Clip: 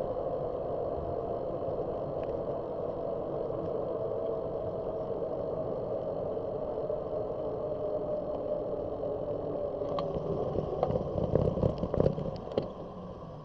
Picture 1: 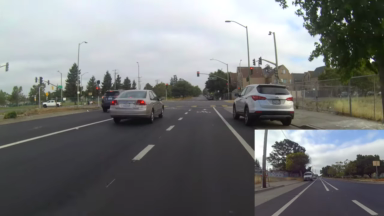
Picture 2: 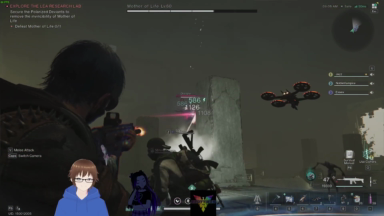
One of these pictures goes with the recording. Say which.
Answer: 1